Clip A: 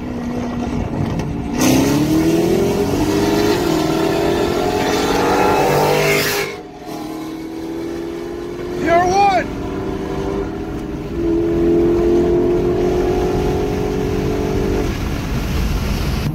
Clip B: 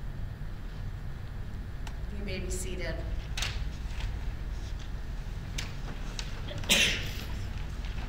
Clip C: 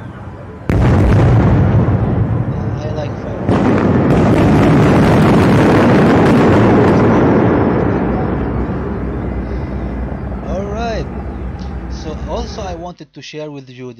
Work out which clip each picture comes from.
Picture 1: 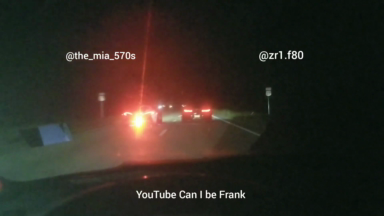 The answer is A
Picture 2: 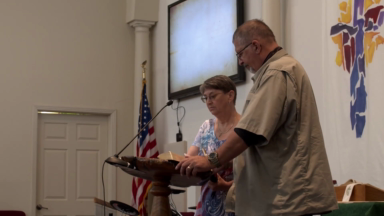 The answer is B